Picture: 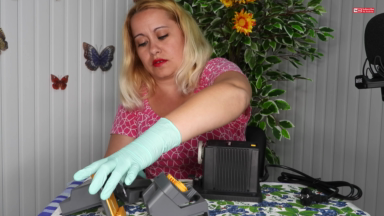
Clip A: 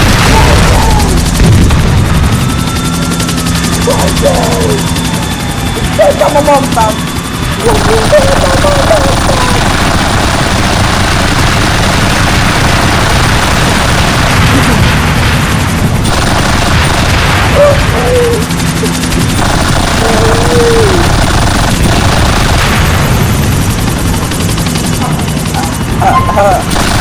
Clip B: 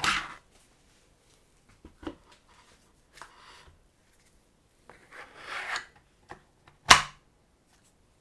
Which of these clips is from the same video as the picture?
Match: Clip B